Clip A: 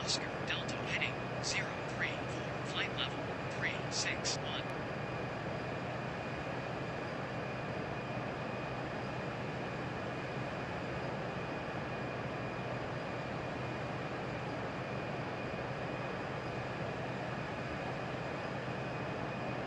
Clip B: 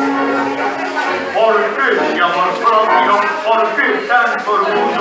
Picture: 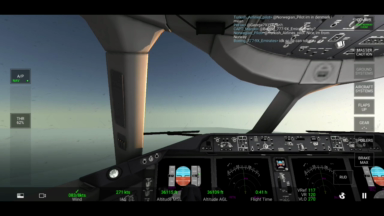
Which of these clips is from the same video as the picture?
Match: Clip A